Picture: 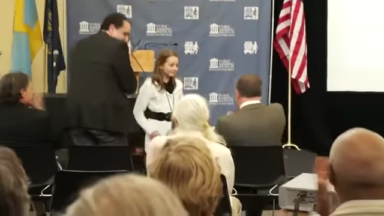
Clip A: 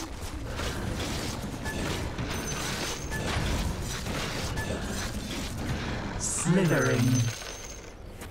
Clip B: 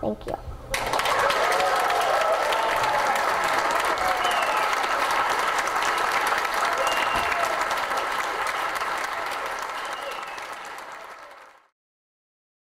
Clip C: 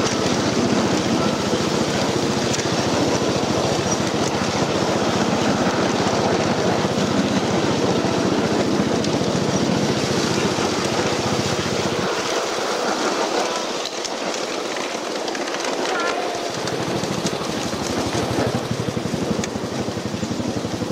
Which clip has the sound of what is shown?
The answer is B